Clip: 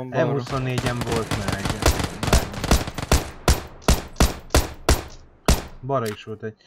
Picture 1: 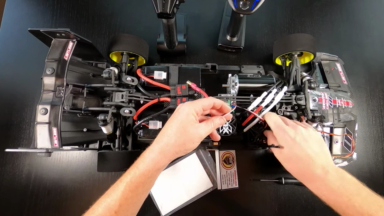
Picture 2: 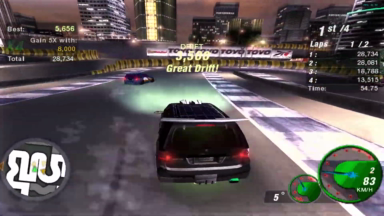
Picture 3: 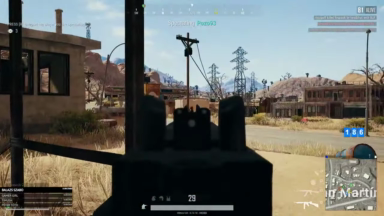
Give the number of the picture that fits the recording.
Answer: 3